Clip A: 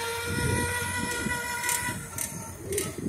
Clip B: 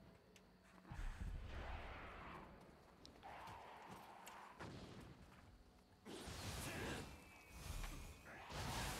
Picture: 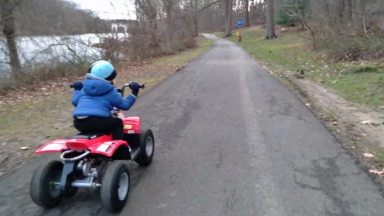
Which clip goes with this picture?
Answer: A